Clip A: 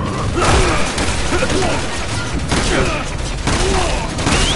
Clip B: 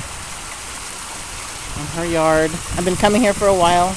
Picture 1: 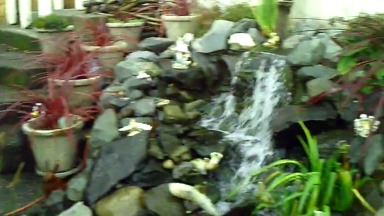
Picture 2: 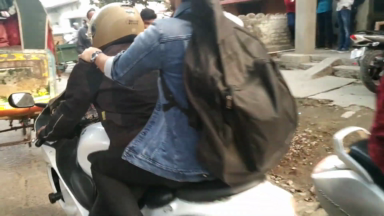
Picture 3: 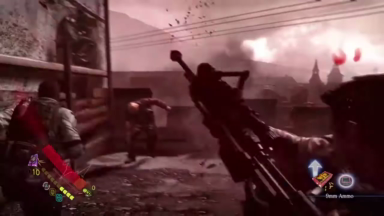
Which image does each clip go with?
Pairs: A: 3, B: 1